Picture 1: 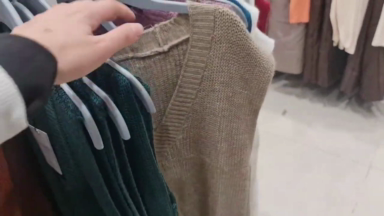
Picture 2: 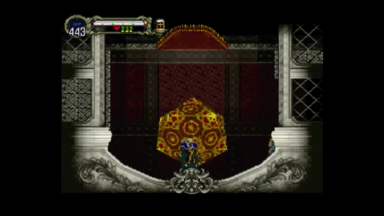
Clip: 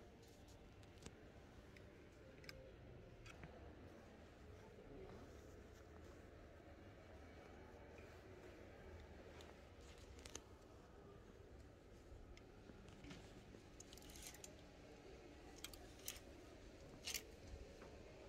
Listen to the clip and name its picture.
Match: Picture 1